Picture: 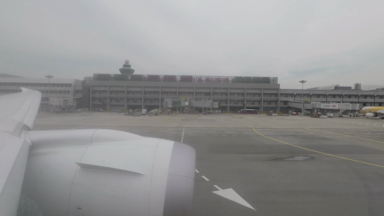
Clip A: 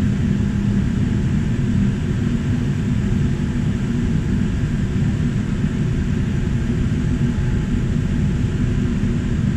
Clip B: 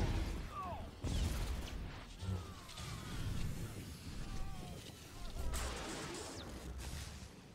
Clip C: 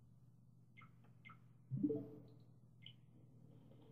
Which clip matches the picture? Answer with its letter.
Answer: A